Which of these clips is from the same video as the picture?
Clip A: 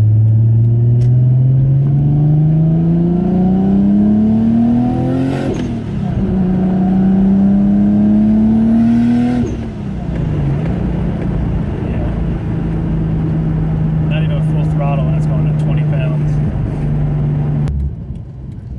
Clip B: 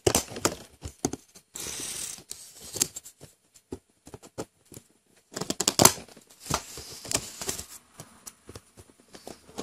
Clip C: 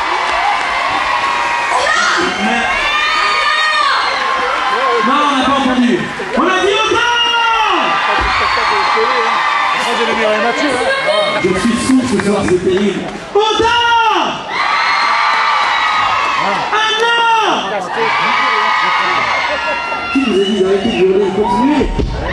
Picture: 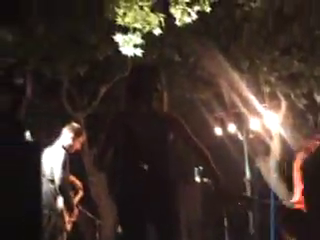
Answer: C